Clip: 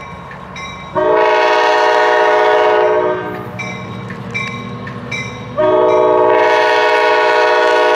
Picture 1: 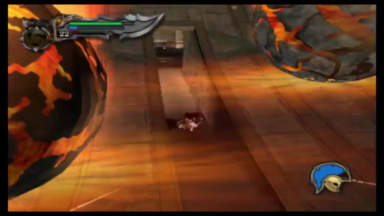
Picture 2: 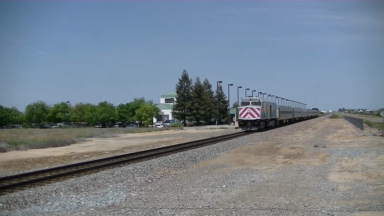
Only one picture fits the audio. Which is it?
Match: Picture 2